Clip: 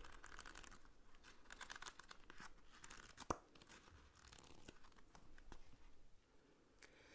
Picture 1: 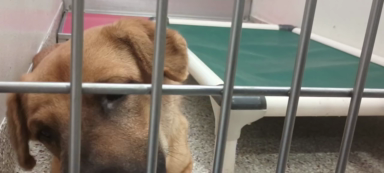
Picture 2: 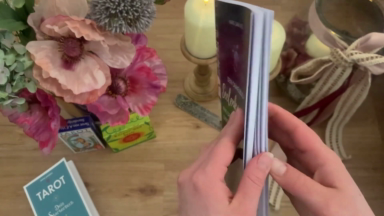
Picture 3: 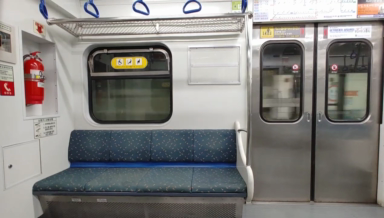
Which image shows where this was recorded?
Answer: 2